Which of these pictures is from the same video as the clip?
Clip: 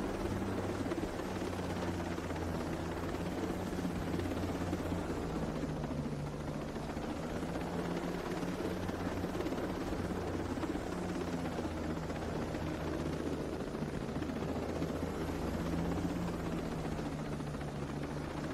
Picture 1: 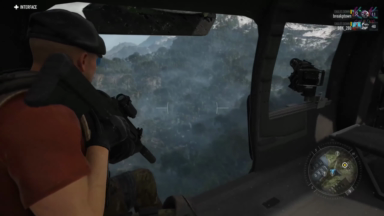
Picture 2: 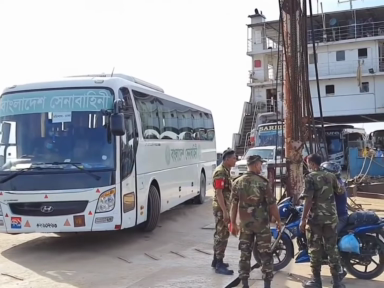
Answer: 1